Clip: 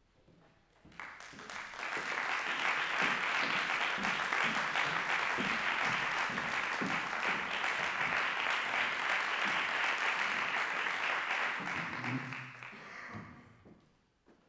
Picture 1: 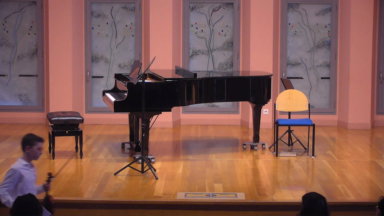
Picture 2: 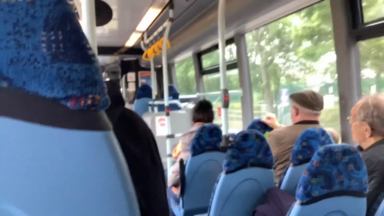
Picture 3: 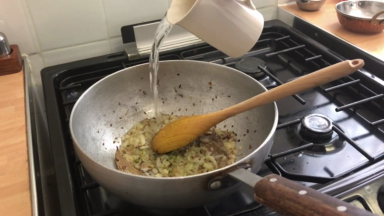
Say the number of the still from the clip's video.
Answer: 1